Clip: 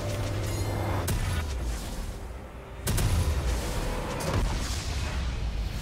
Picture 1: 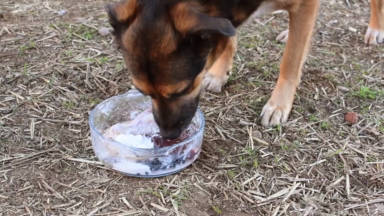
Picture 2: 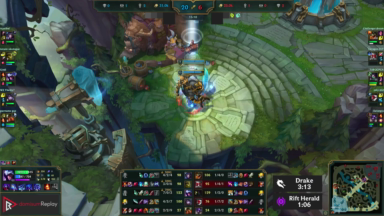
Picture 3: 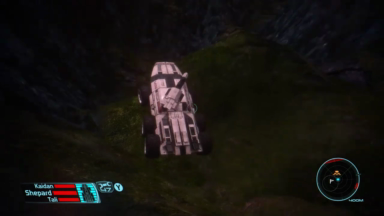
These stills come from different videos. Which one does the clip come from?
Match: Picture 2